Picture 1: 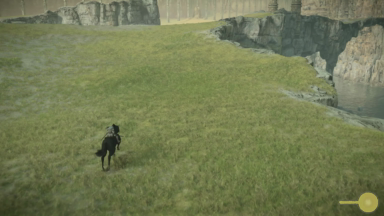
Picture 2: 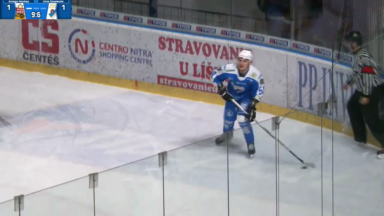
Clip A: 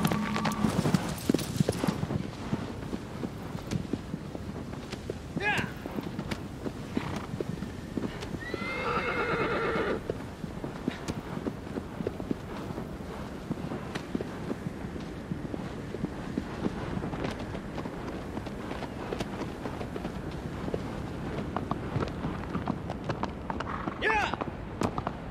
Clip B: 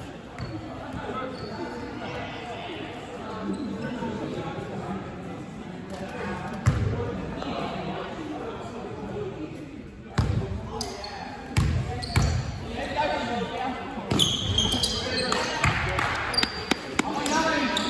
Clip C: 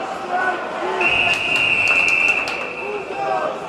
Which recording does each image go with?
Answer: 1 A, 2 C